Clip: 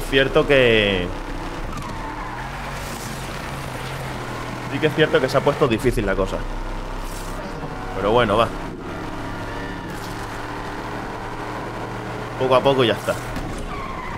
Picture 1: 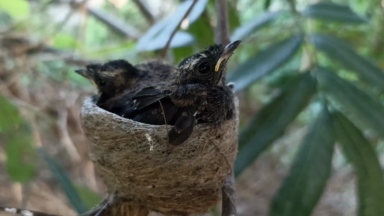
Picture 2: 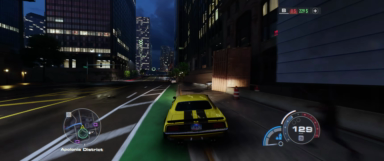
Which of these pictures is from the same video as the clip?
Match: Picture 2